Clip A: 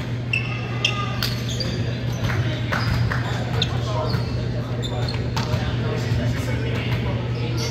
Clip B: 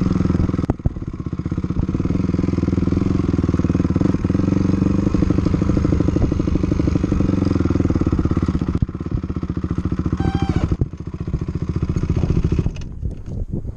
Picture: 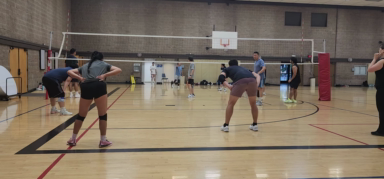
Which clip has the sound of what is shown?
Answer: A